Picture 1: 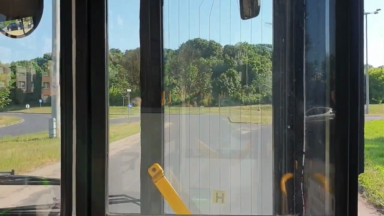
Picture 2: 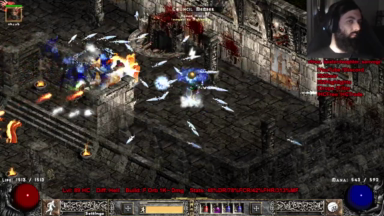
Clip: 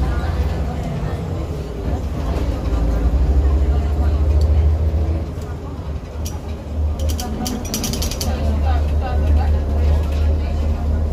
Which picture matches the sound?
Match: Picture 1